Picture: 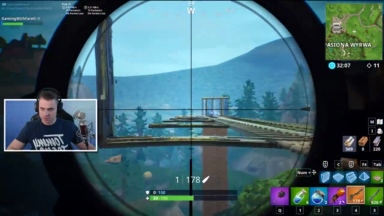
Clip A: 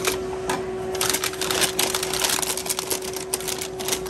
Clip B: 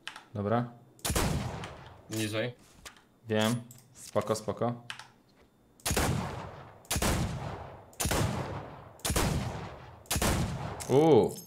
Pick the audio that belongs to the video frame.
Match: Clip B